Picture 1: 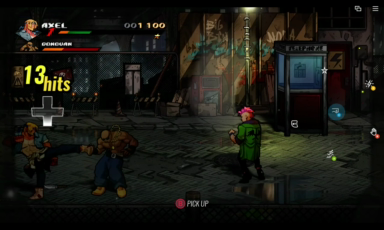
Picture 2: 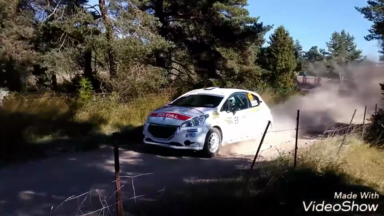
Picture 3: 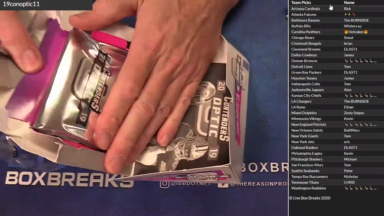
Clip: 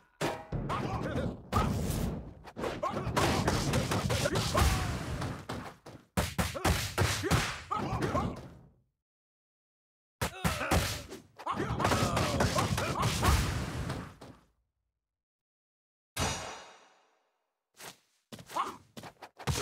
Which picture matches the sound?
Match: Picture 1